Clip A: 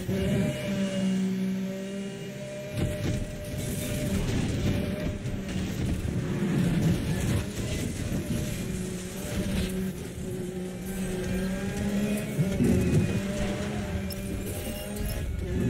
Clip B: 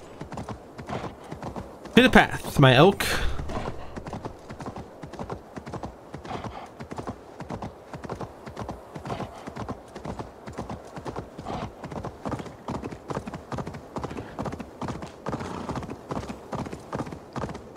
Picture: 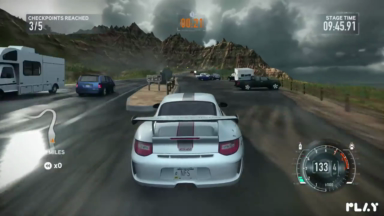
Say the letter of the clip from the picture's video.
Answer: A